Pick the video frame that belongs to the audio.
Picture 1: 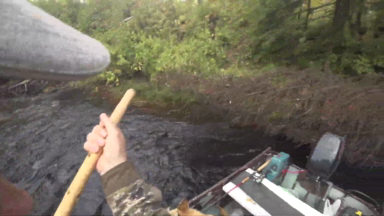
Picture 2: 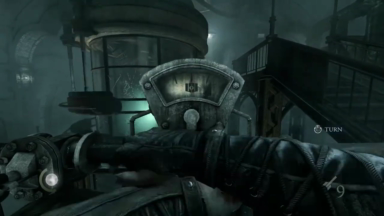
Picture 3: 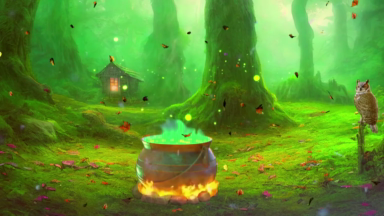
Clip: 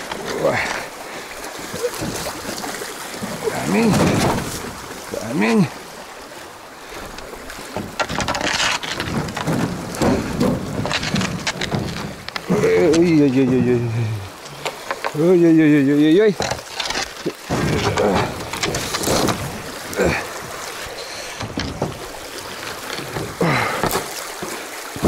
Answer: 1